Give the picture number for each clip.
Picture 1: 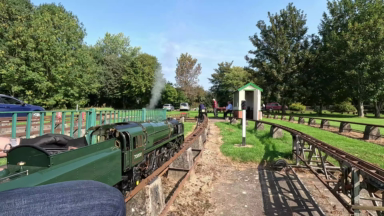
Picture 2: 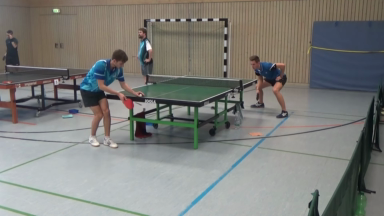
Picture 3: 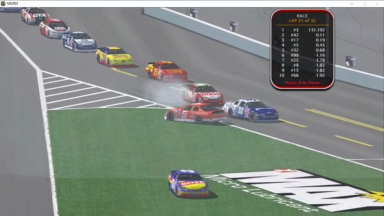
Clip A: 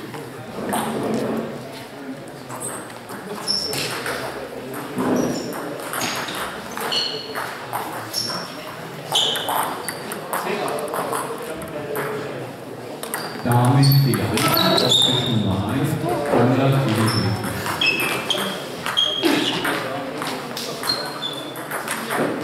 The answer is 2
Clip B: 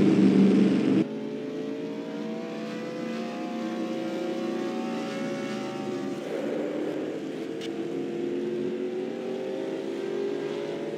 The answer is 3